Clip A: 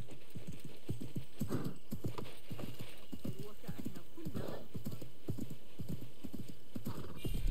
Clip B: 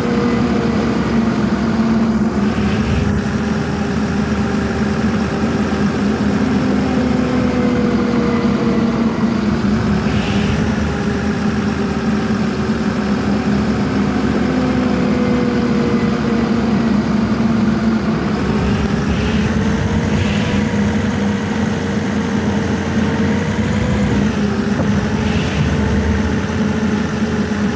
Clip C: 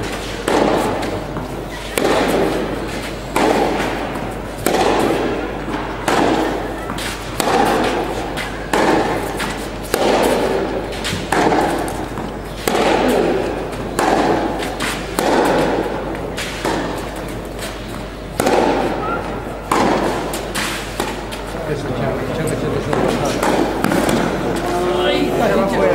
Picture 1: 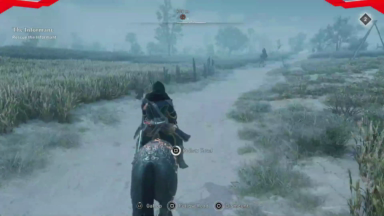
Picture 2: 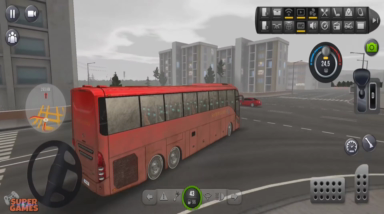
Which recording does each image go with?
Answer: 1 A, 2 B